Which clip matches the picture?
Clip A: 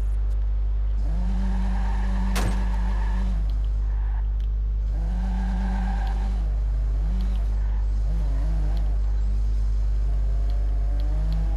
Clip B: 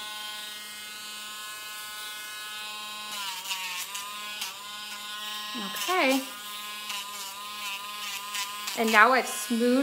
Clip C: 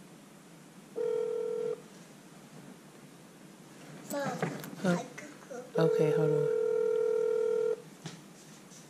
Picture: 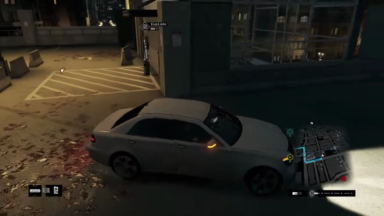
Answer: A